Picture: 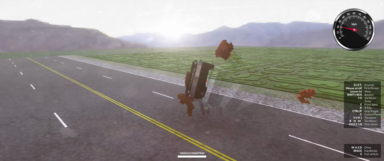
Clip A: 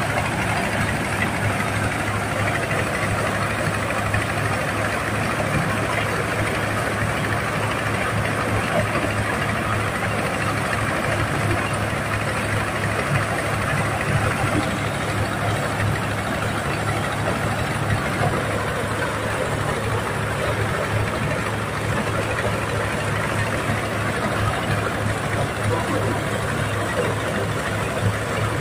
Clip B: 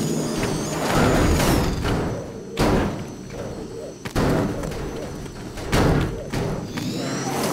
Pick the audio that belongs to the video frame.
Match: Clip B